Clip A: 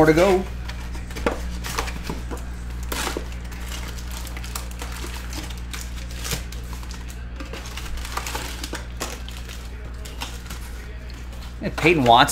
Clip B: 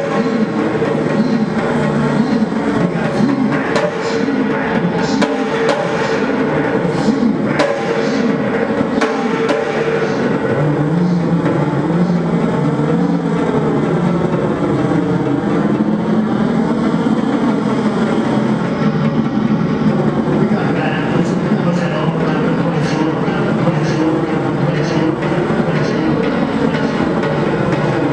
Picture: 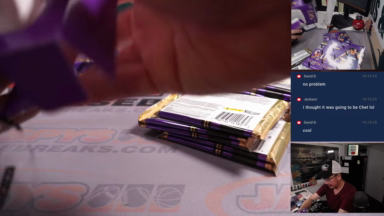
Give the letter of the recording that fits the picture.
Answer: A